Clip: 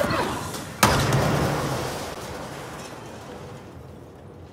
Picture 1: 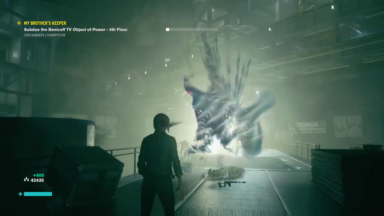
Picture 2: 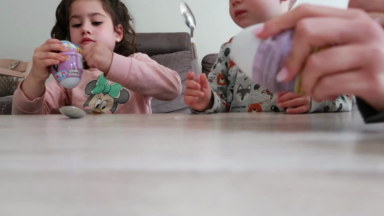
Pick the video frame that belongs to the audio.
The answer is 1